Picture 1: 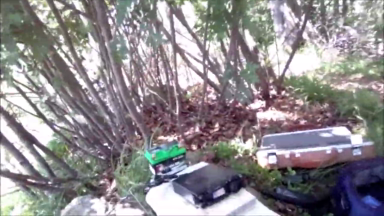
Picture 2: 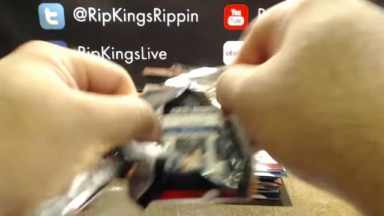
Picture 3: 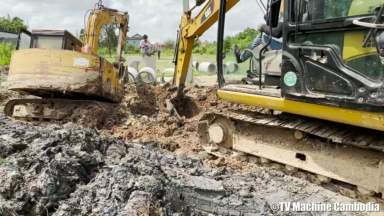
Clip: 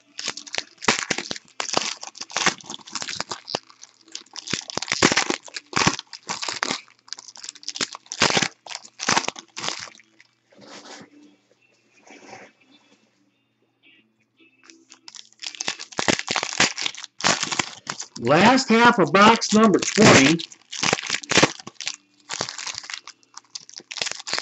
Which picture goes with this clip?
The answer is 2